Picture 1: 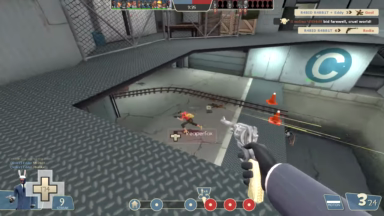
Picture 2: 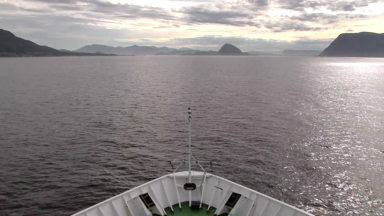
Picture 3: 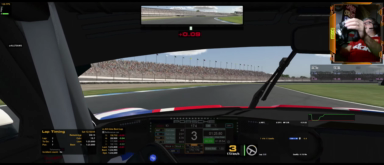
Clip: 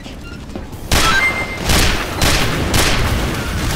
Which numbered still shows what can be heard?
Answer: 1